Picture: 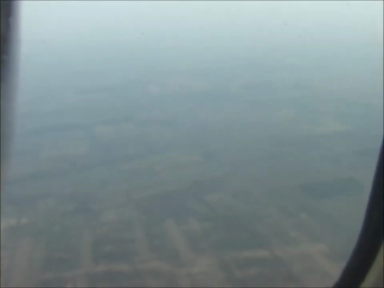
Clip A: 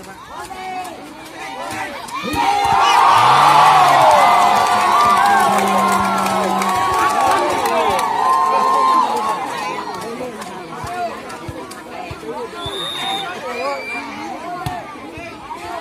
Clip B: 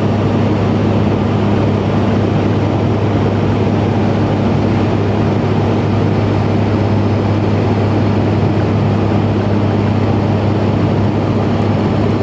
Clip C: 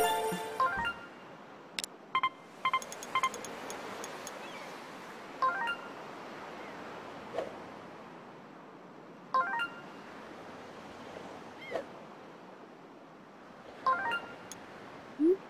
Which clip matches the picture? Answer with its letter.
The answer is B